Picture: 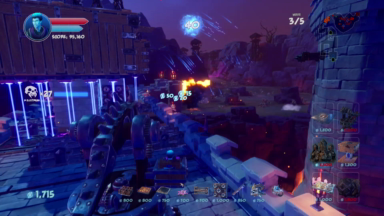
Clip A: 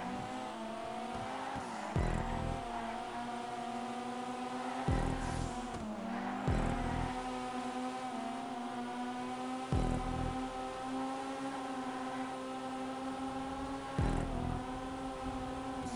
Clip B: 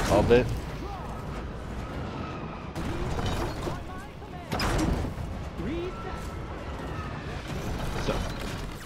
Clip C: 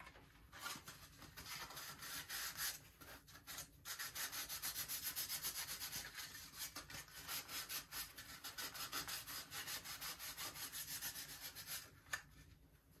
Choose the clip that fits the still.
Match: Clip B